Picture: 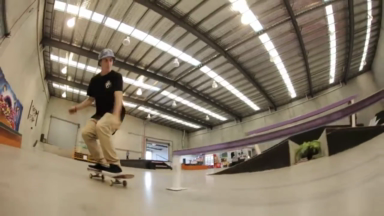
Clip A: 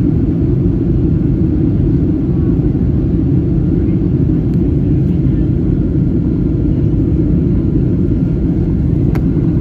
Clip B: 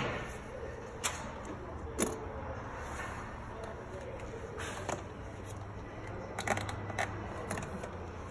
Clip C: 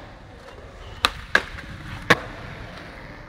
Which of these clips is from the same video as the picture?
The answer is C